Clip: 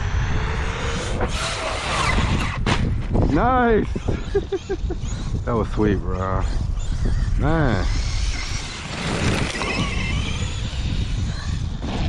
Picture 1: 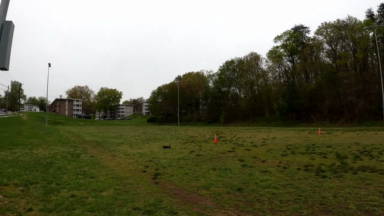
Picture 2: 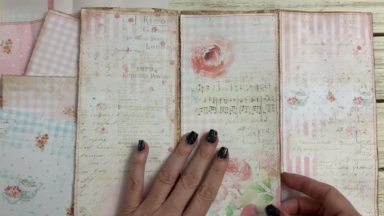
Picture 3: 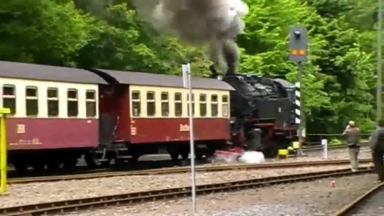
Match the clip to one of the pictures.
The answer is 1